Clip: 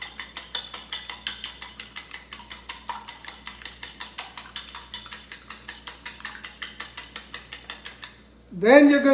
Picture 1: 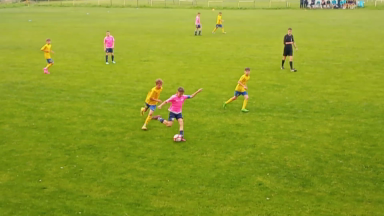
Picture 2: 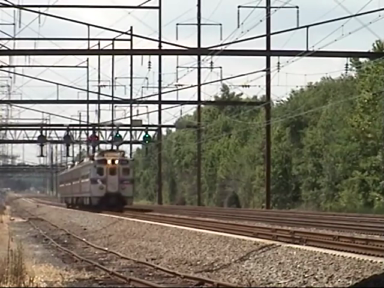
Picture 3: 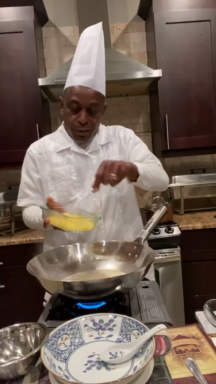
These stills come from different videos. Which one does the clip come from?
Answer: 3